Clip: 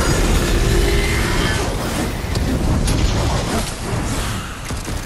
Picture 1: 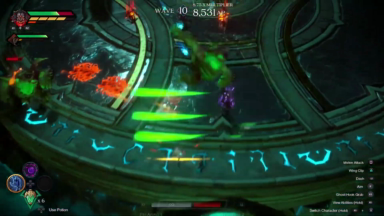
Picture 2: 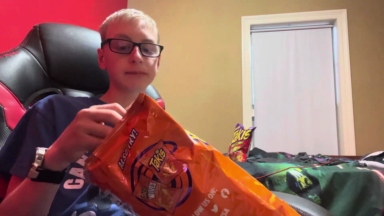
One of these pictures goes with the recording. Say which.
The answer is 1